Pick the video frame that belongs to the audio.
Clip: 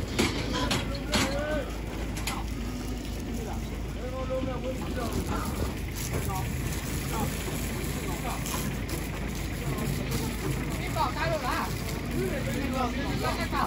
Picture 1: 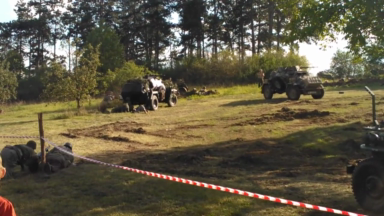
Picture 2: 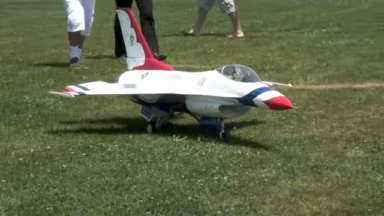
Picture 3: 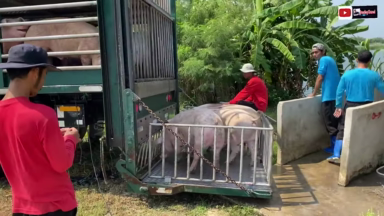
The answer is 3